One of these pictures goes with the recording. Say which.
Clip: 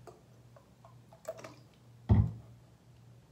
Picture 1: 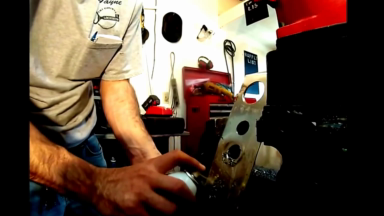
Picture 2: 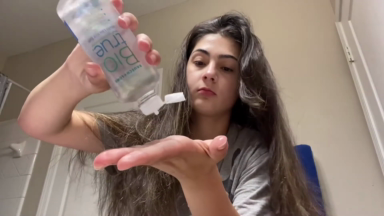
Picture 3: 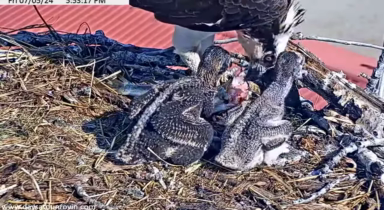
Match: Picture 2